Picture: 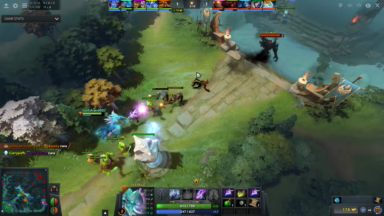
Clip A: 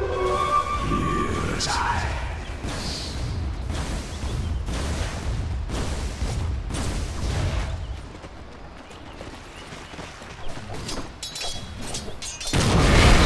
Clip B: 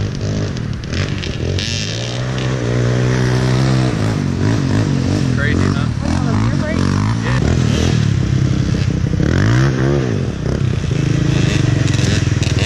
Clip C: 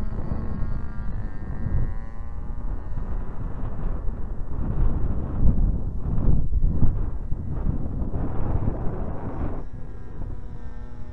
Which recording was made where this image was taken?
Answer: A